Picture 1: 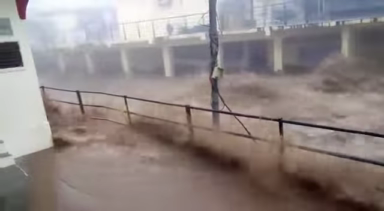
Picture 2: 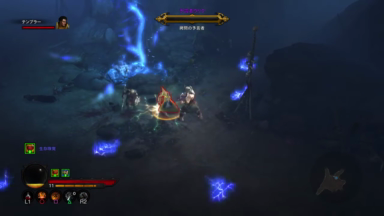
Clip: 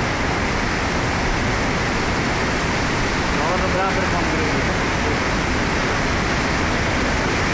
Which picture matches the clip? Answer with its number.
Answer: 1